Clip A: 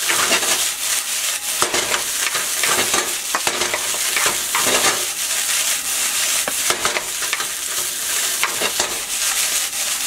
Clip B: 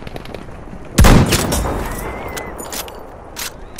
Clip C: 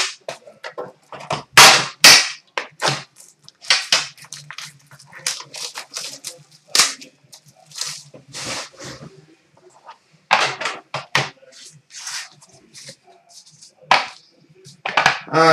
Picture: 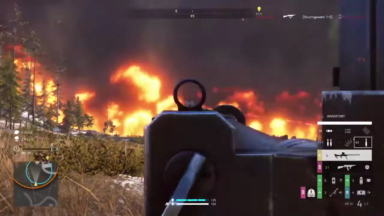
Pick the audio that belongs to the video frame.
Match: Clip B